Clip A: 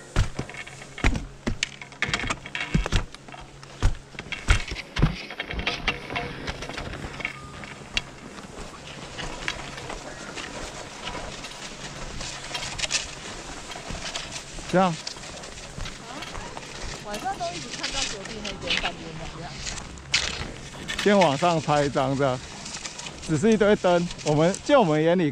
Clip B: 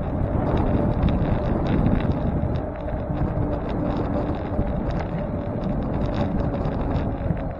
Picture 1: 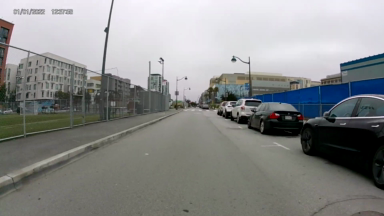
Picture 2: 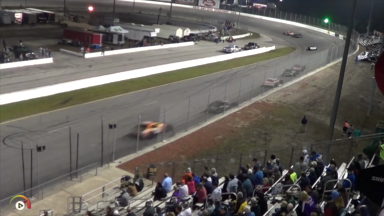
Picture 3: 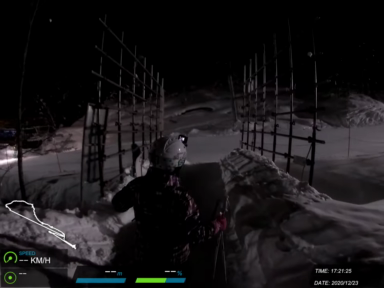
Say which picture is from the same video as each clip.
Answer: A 3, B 1